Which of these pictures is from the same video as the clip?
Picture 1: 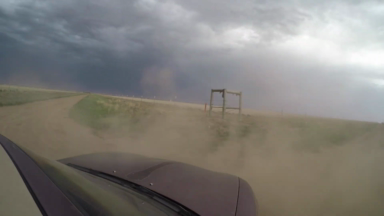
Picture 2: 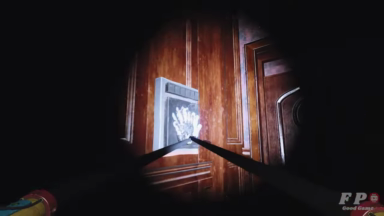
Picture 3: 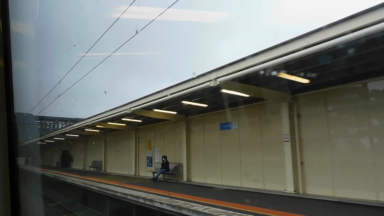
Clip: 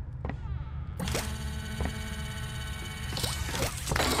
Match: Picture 2